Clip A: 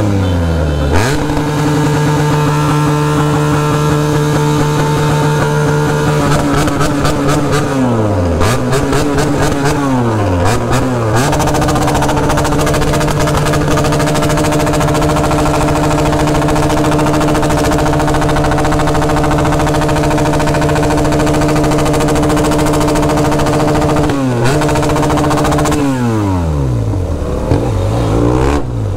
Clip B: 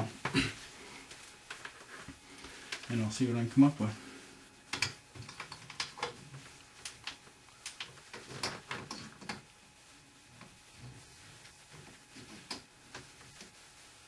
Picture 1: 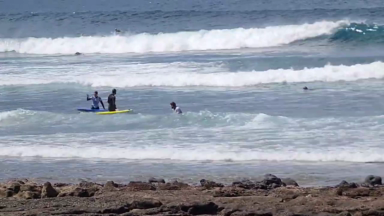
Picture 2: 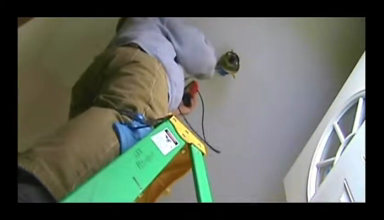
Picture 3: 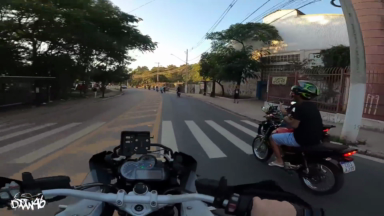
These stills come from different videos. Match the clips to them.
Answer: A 3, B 2